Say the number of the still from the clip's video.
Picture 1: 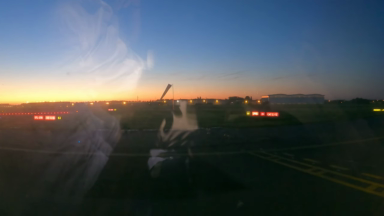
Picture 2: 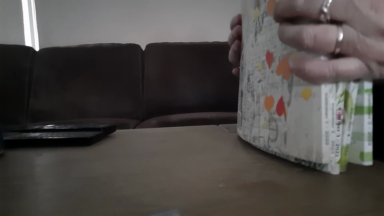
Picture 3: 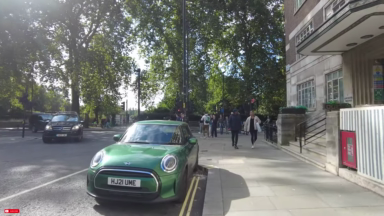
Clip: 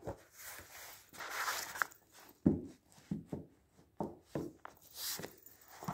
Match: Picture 2